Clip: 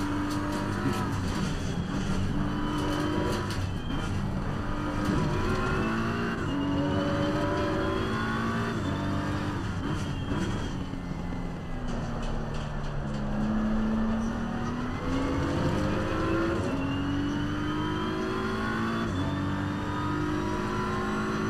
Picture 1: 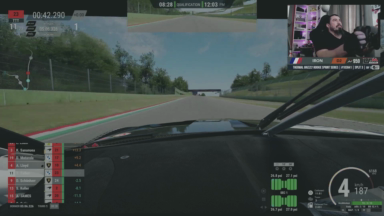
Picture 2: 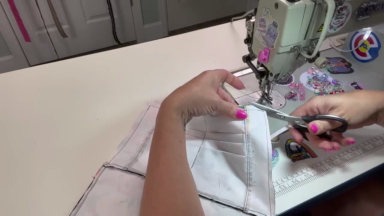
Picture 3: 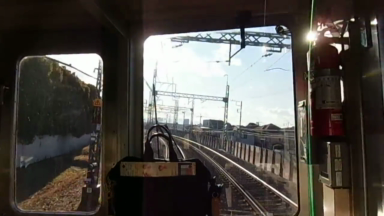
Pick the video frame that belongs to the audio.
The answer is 1